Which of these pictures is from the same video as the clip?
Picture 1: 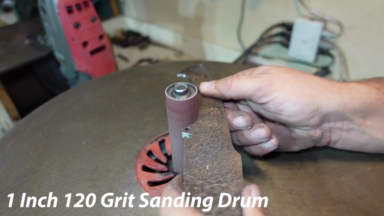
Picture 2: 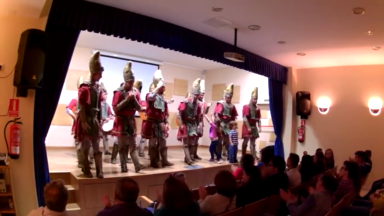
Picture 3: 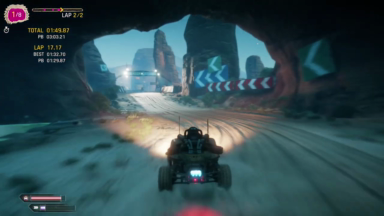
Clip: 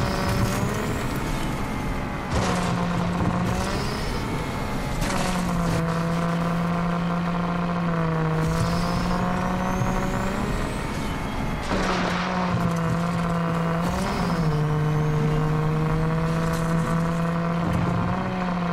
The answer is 3